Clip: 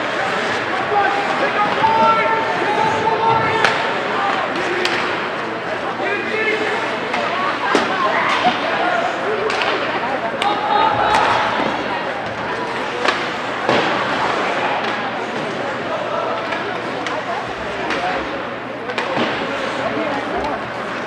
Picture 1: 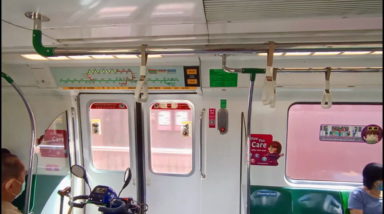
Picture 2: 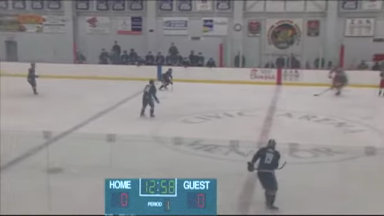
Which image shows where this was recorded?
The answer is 2